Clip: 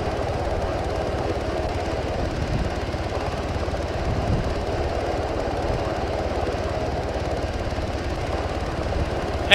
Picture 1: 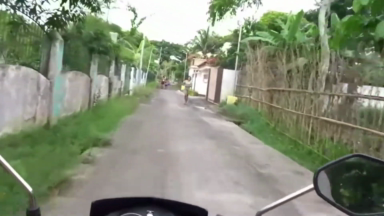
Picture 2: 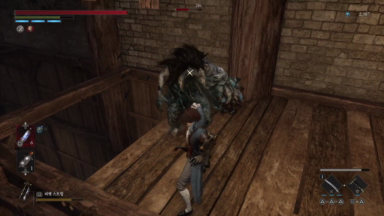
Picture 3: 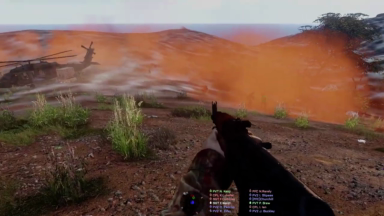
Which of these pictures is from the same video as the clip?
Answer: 3